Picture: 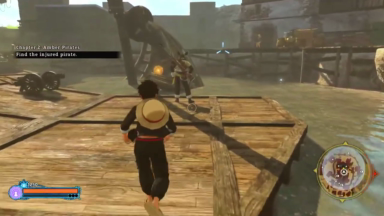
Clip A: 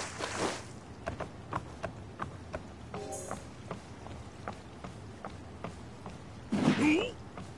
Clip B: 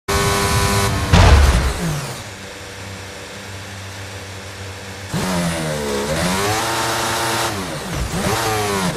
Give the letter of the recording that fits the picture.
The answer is A